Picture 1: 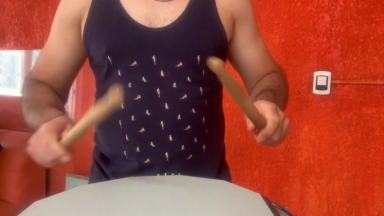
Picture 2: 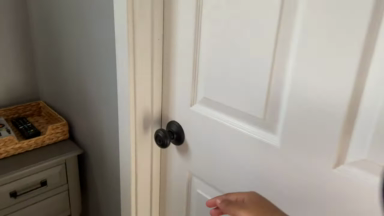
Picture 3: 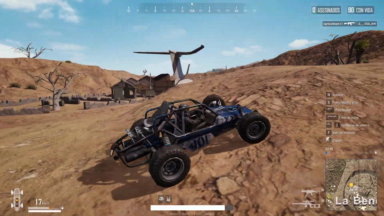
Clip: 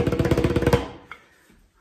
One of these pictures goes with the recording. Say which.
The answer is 1